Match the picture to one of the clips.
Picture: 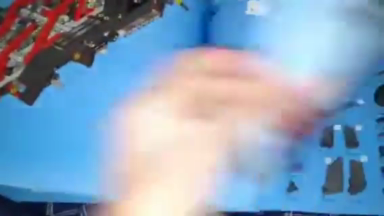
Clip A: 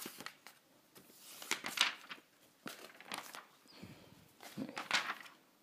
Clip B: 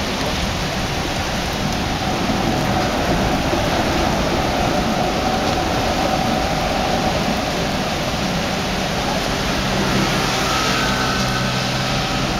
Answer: A